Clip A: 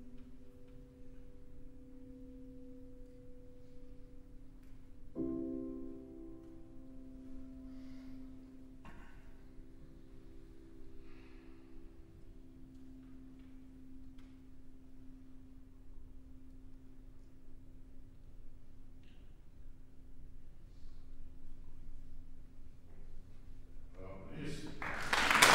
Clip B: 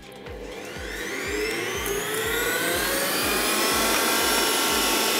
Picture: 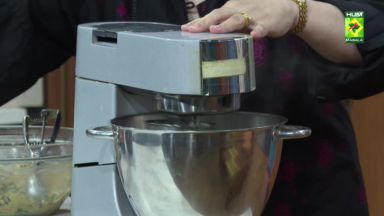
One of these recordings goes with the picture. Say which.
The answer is B